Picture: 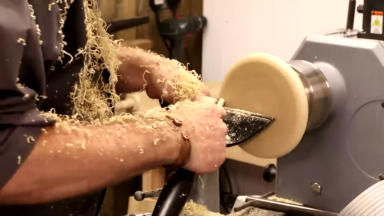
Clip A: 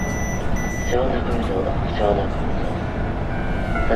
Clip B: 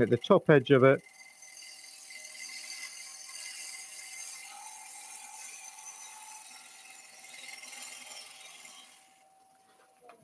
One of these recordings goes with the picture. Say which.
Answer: B